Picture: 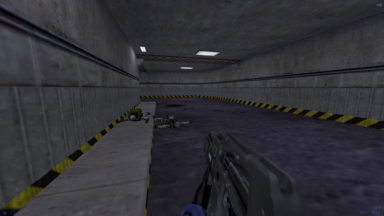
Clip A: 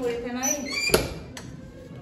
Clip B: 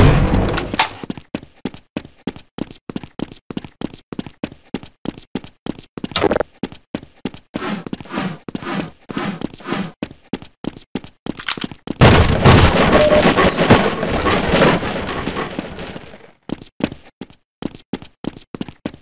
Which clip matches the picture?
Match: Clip B